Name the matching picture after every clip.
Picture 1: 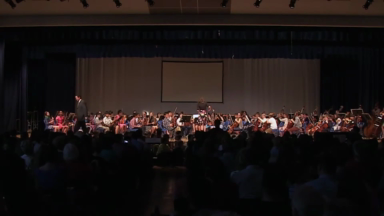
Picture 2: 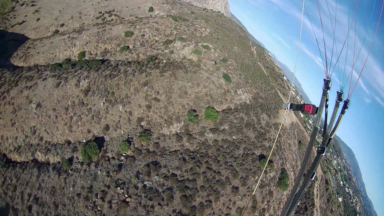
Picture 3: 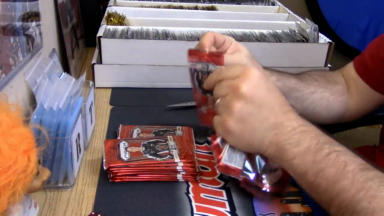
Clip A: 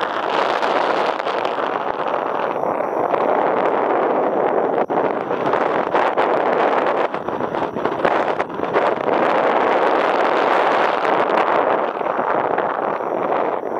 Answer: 2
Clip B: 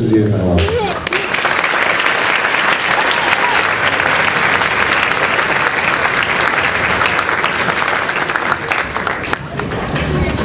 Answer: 1